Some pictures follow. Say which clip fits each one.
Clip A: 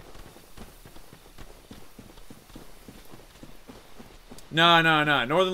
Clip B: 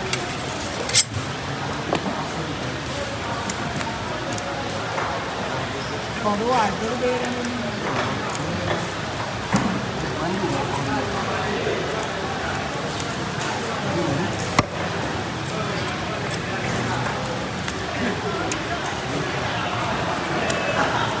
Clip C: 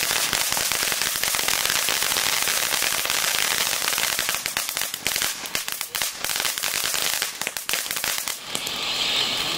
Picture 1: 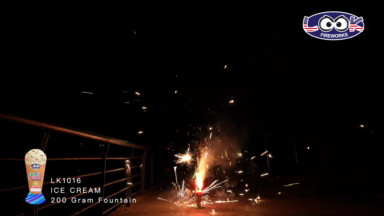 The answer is C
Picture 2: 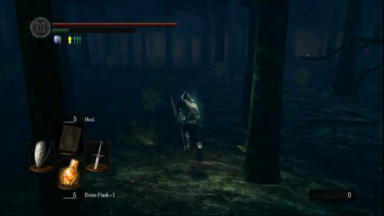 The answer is A